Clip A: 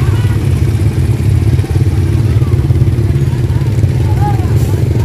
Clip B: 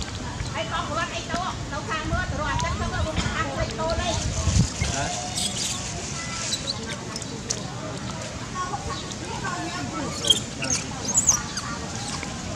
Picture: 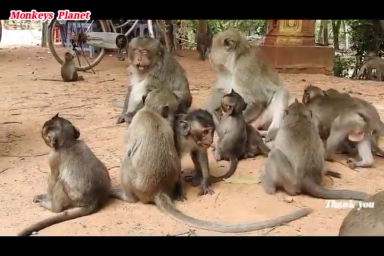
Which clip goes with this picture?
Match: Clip B